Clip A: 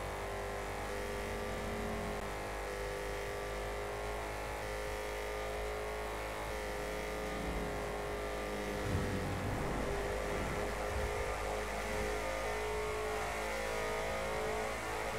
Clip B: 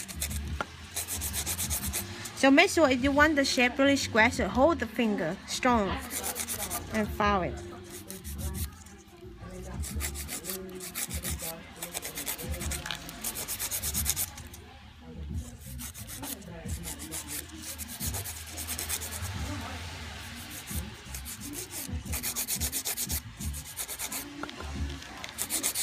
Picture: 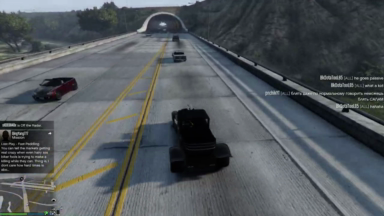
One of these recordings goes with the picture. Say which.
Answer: A